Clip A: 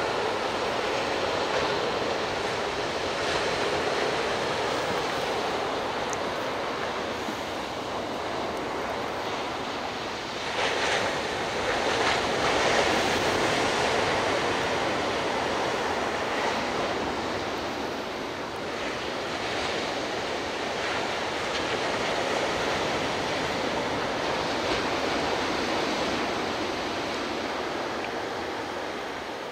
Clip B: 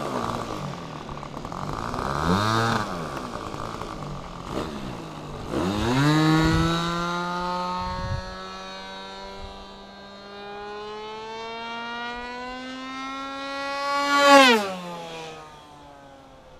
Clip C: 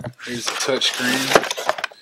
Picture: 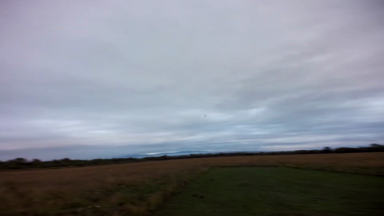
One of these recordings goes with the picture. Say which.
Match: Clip B